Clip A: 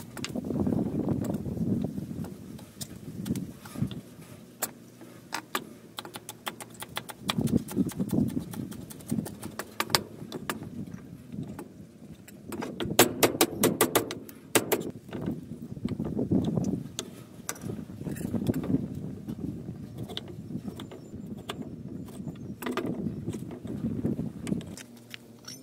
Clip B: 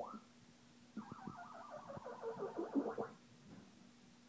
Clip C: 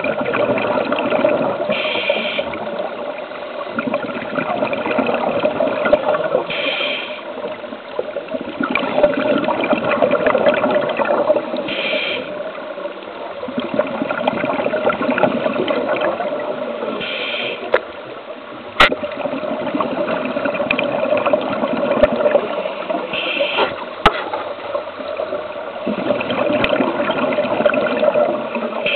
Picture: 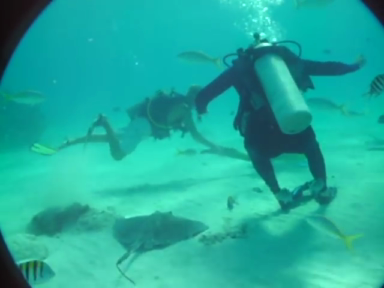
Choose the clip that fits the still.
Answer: C